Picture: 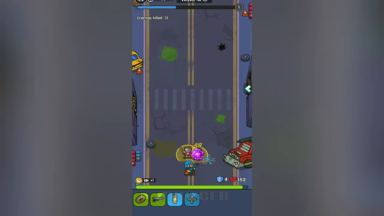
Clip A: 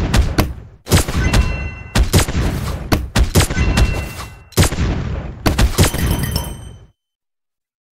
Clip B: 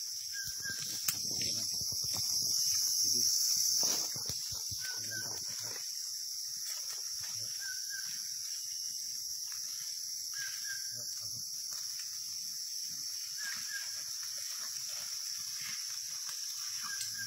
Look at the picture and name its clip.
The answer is A